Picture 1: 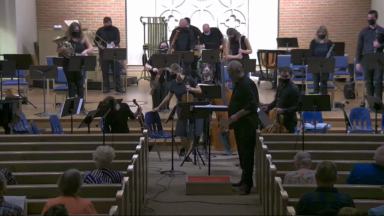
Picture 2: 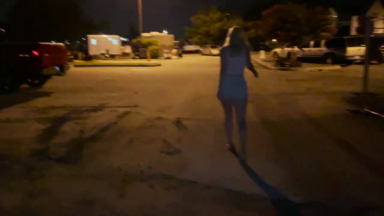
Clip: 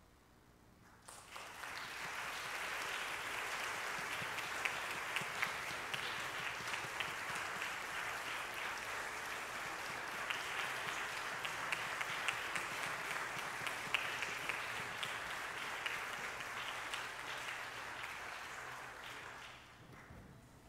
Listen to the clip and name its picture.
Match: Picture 1